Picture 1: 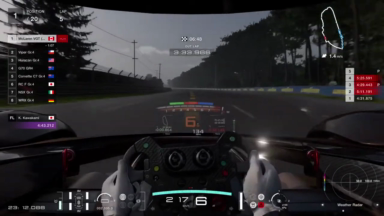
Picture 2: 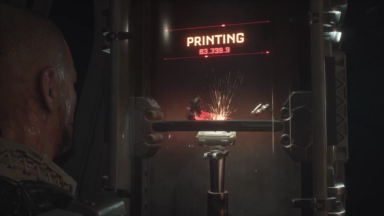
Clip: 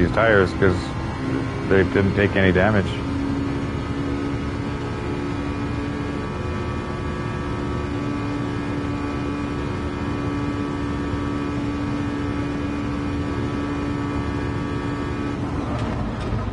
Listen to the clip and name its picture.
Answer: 1